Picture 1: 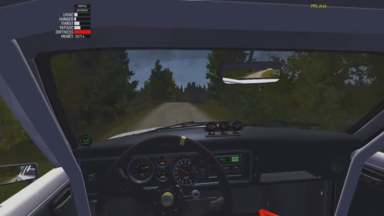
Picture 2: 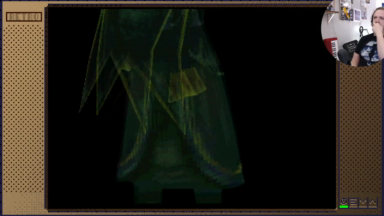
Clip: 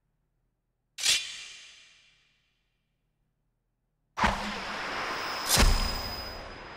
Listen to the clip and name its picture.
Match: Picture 2